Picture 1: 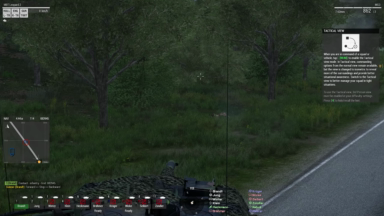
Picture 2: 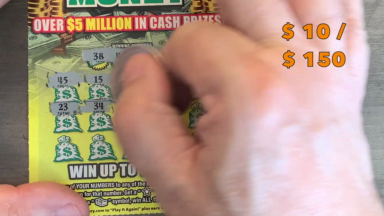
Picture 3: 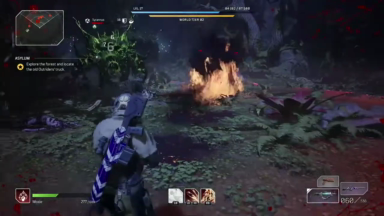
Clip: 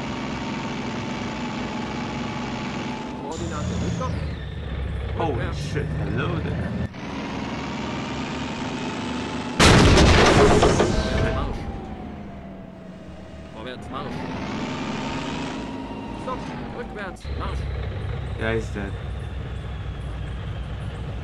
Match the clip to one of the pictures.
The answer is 1